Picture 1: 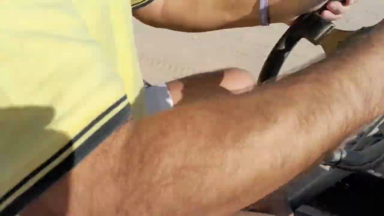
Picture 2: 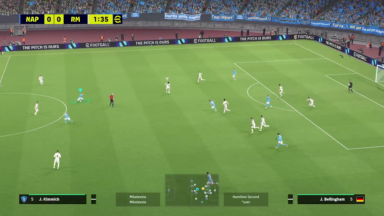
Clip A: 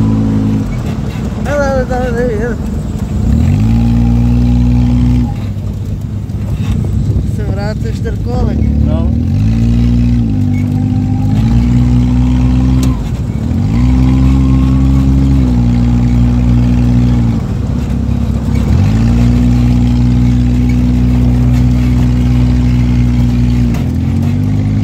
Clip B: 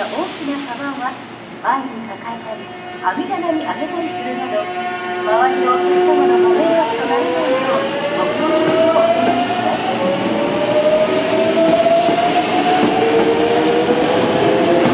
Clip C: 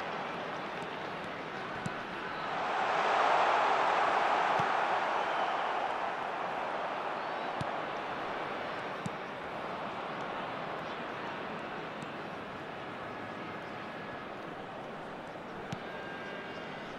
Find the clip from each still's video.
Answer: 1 A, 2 C